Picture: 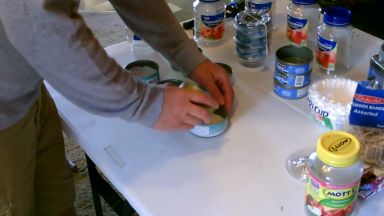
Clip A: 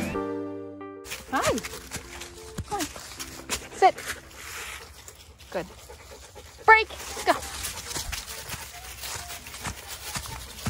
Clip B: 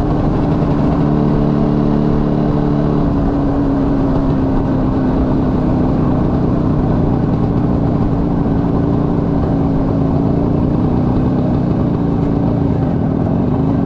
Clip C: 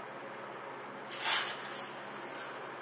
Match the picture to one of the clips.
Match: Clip C